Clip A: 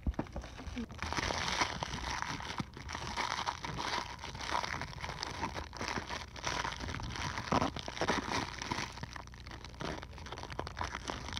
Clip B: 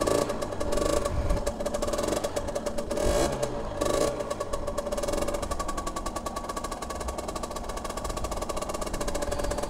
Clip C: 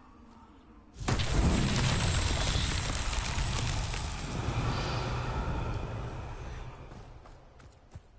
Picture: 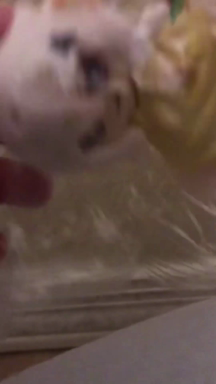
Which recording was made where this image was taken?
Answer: A